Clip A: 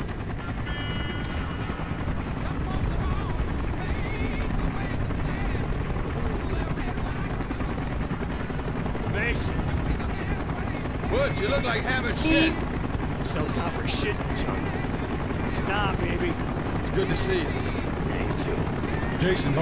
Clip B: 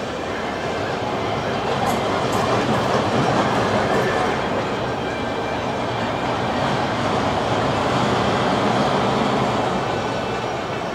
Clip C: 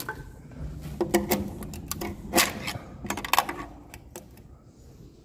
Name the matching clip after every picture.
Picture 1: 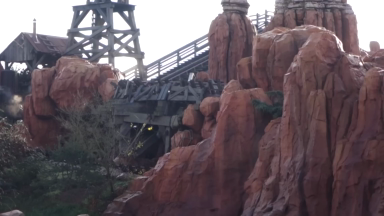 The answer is B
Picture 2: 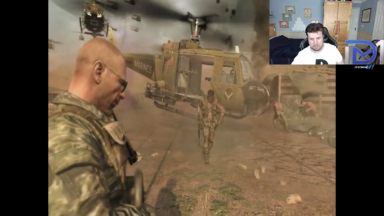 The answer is A